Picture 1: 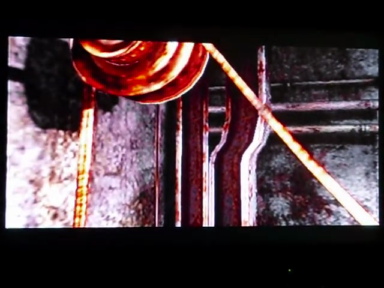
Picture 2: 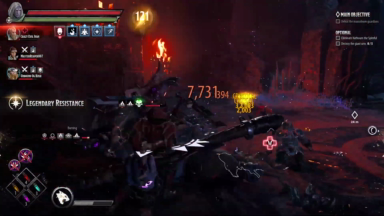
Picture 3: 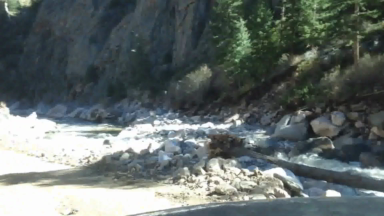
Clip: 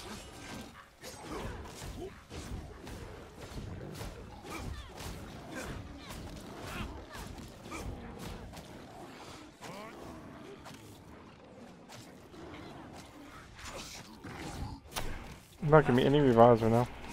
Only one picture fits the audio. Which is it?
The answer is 2